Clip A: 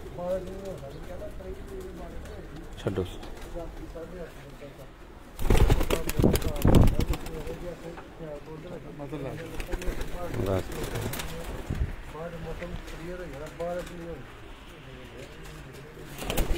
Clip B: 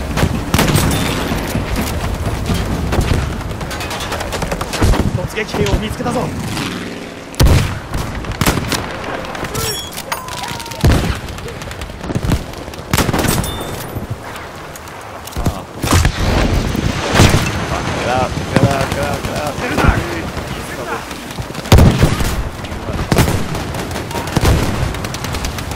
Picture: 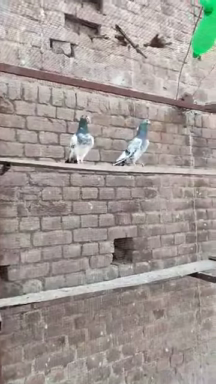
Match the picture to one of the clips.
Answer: A